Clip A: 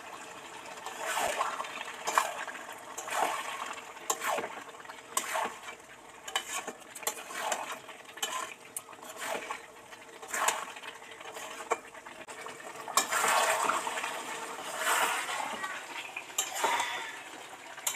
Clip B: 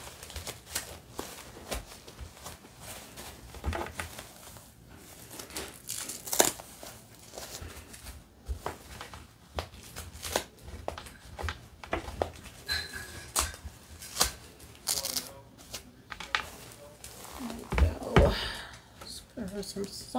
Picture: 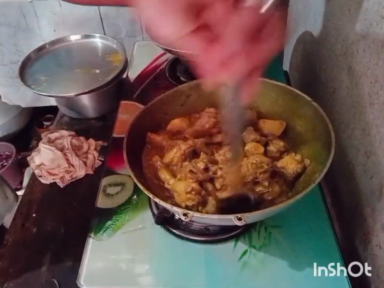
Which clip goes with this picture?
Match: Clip A